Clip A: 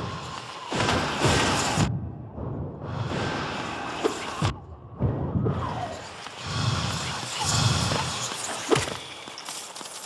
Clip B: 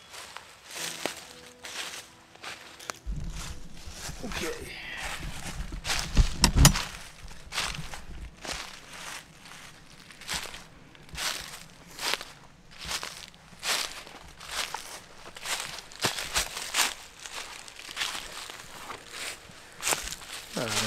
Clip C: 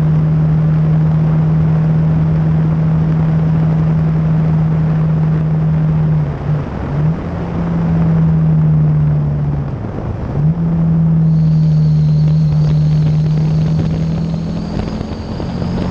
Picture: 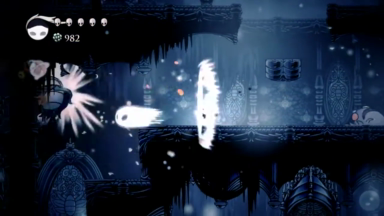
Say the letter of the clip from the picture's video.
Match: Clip A